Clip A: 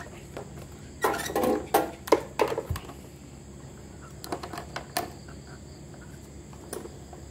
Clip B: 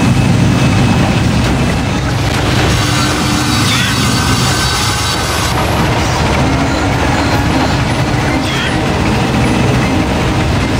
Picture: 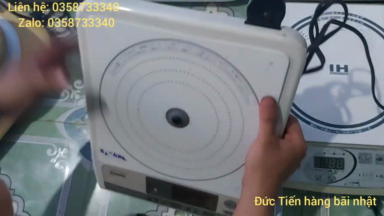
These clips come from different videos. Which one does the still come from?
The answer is A